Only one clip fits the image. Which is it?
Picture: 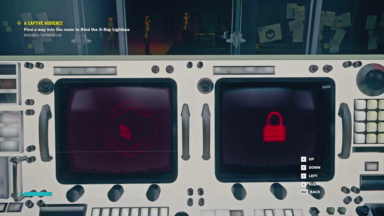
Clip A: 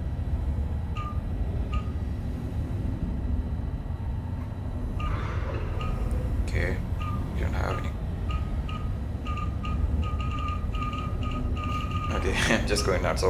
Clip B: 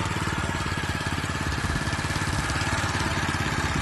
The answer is A